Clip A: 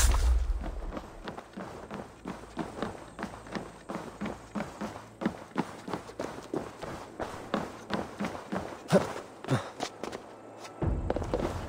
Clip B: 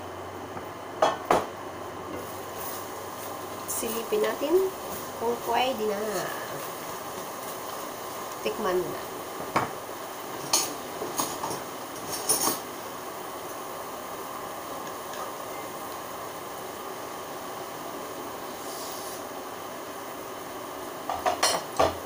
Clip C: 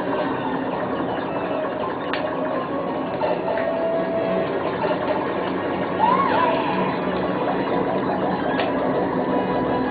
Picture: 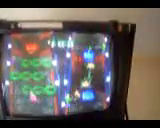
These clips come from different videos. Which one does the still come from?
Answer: C